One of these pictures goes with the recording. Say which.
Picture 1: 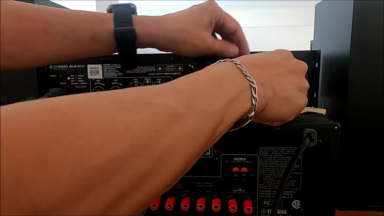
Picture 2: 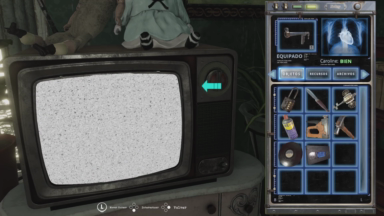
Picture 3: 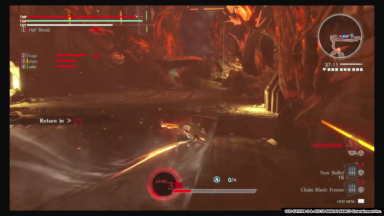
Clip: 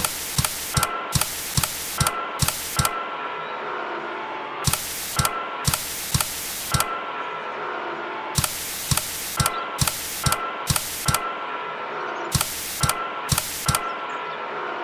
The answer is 2